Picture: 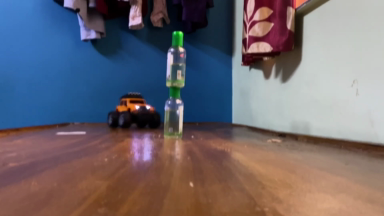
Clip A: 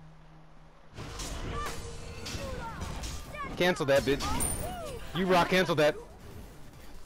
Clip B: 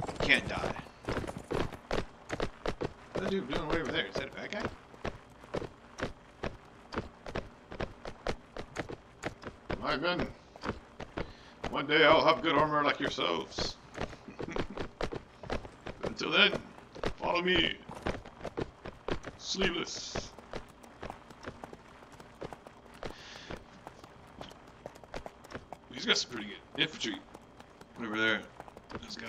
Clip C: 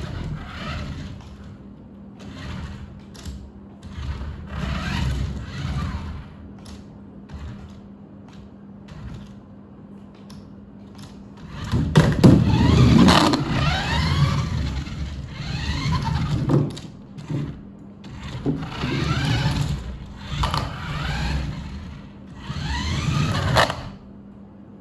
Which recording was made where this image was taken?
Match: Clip C